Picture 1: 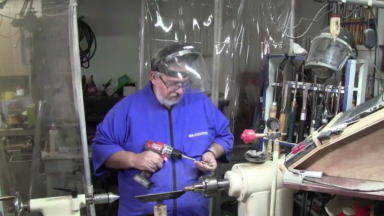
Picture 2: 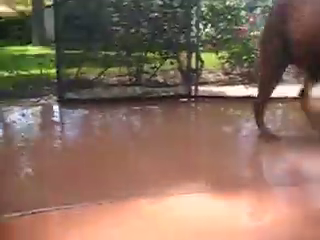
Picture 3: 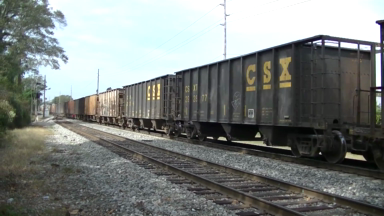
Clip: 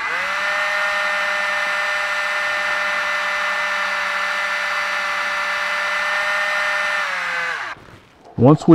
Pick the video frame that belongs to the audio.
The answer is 1